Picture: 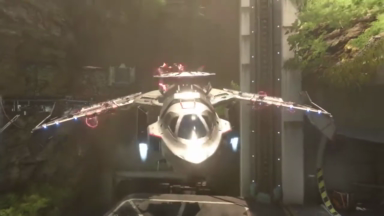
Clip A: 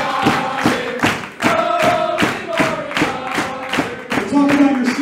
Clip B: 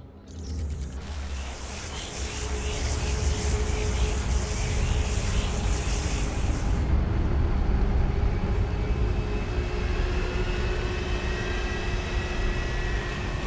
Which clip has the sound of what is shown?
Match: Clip B